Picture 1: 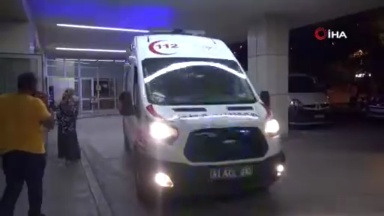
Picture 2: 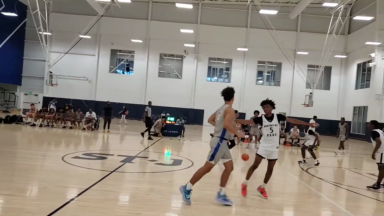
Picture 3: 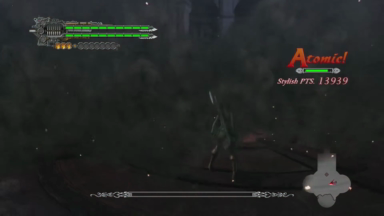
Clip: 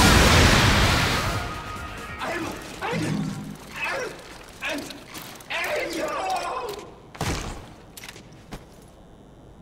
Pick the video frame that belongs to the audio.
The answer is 3